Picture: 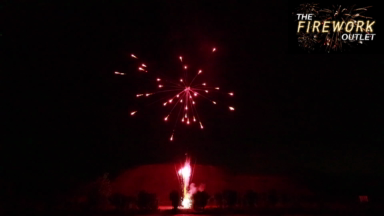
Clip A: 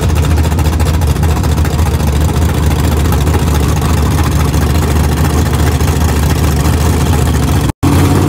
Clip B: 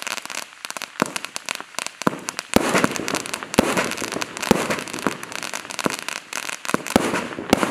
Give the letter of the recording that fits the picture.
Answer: B